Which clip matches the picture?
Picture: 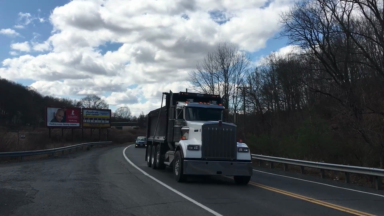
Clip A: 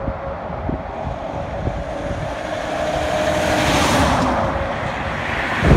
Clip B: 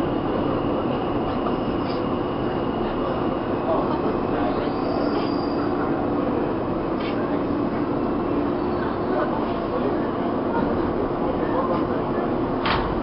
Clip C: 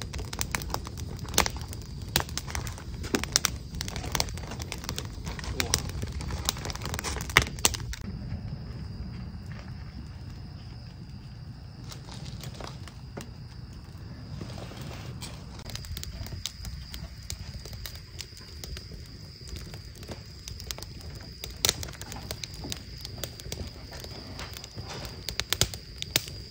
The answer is A